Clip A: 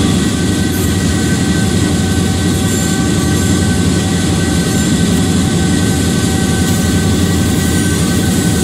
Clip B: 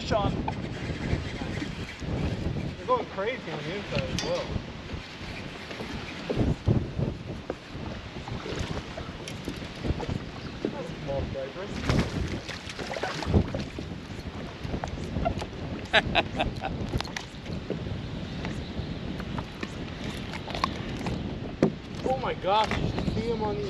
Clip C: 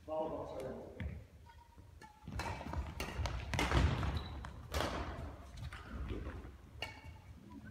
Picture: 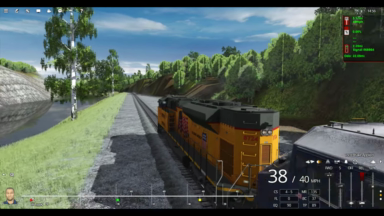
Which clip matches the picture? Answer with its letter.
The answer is A